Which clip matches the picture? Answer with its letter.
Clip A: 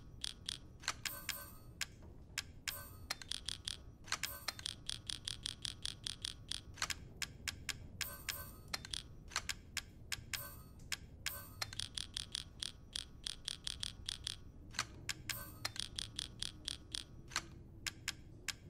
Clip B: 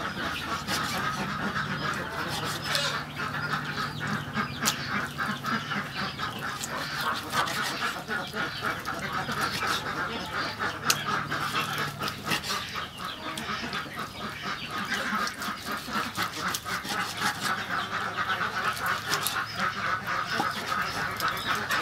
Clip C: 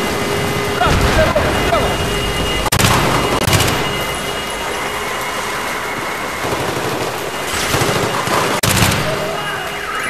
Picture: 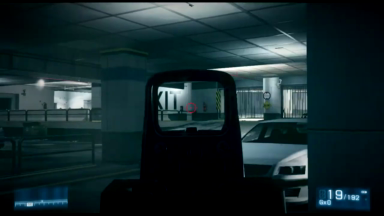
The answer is C